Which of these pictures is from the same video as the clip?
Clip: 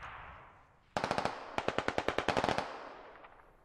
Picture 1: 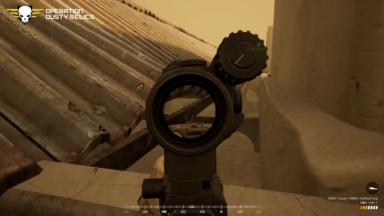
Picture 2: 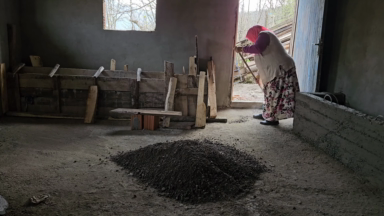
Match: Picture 1